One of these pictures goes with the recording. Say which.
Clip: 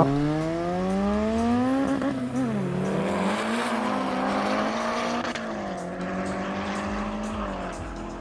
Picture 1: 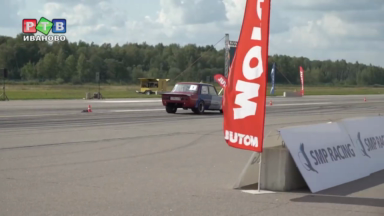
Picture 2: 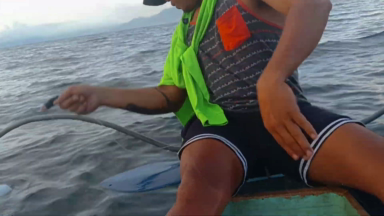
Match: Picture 1